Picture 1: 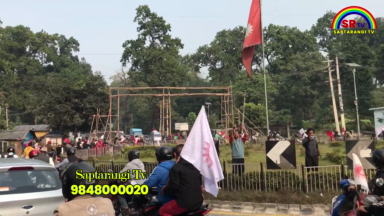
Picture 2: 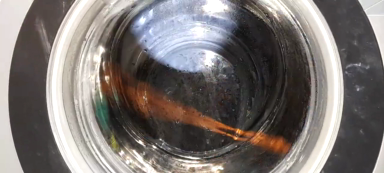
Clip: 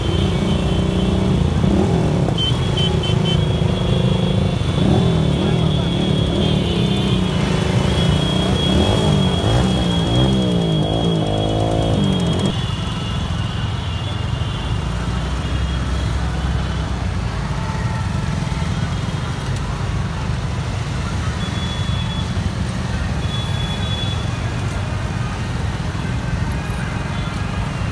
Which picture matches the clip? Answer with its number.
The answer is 1